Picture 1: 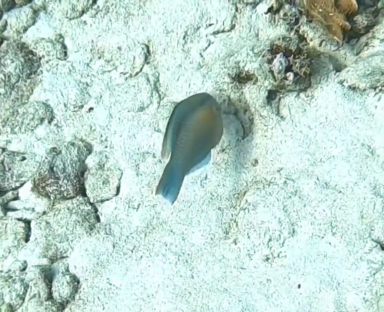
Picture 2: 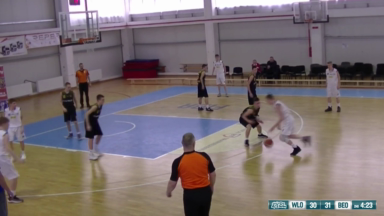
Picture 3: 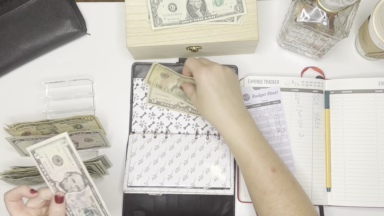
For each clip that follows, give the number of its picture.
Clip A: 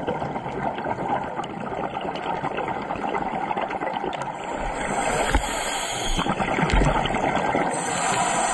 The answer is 1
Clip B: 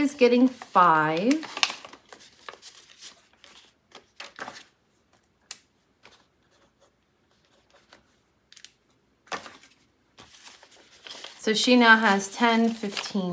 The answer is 3